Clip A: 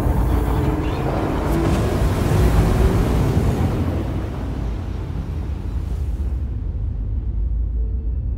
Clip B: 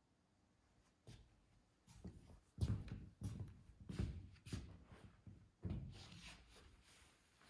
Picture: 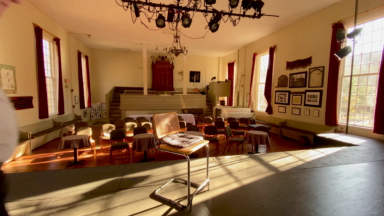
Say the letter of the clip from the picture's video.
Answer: B